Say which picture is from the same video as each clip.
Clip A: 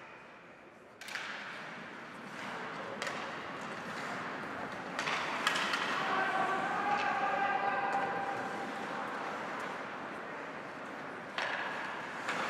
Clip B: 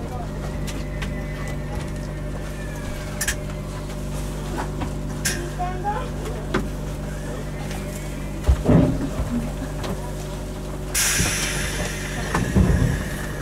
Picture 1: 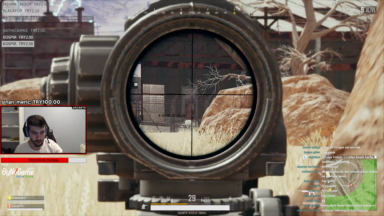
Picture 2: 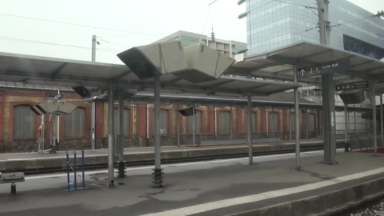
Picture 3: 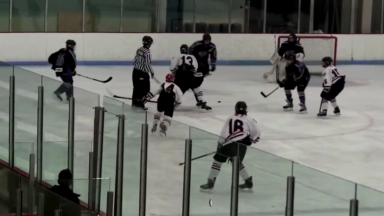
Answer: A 3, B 2